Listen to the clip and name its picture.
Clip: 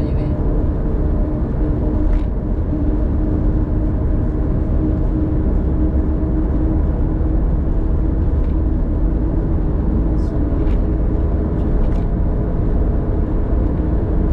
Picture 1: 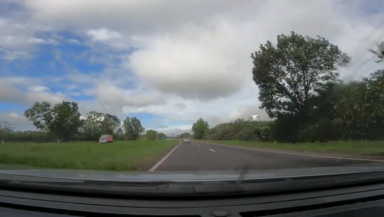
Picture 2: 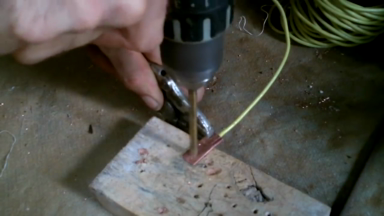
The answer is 1